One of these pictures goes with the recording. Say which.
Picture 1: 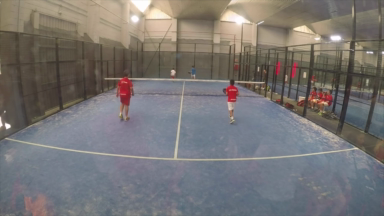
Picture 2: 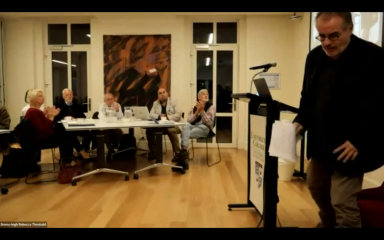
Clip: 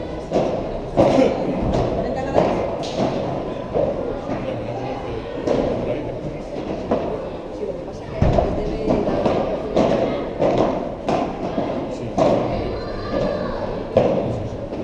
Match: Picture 1